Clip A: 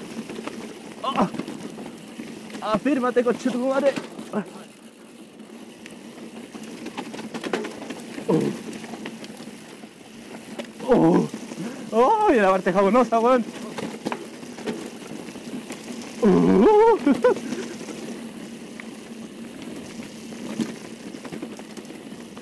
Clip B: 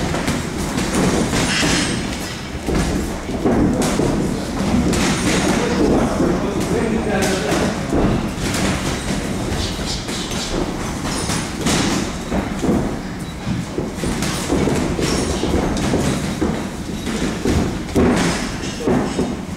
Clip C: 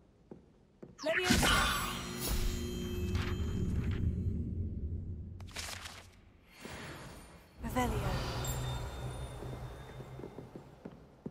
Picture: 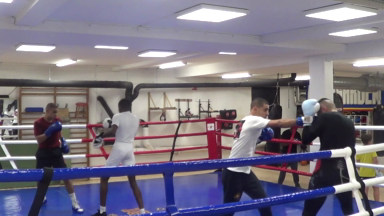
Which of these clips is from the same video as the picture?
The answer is B